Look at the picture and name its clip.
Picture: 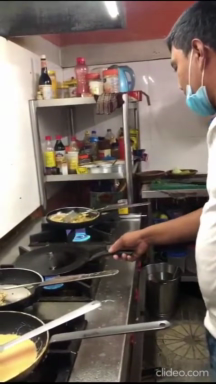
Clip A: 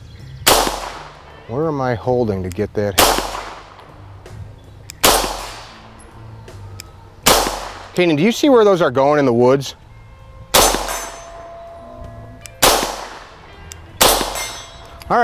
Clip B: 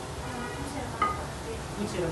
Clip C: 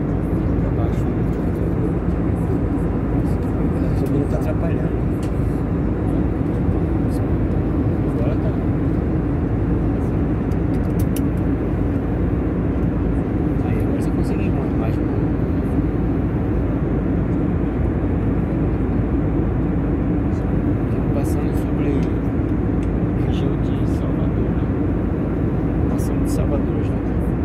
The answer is B